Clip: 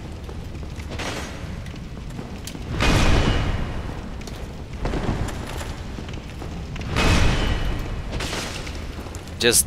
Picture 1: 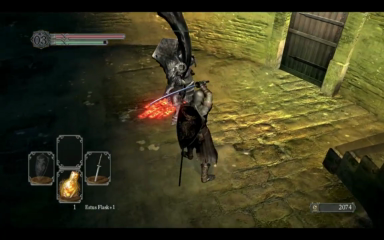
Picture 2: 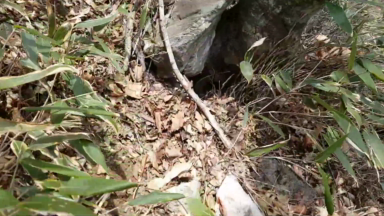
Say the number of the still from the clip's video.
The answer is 1